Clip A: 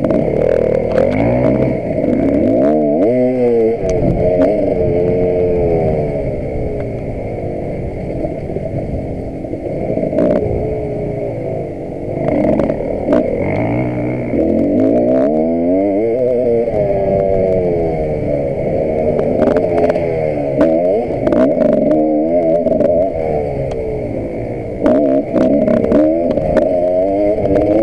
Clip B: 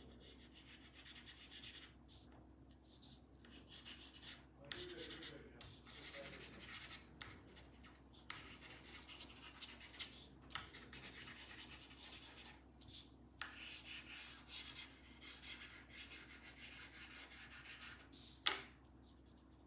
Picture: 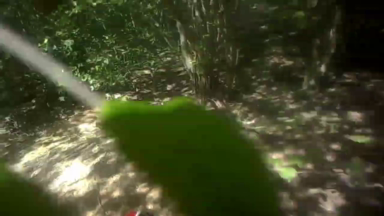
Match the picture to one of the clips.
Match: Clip A